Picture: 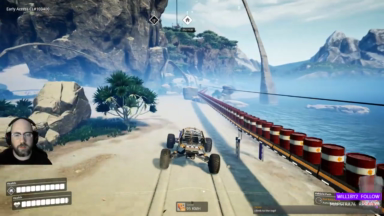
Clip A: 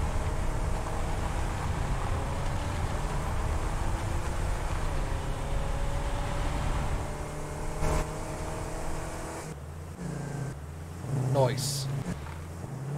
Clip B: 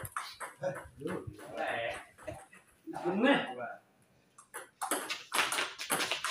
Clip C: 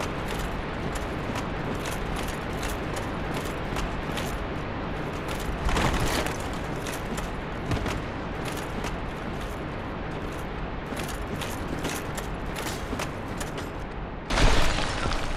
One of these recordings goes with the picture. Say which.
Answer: A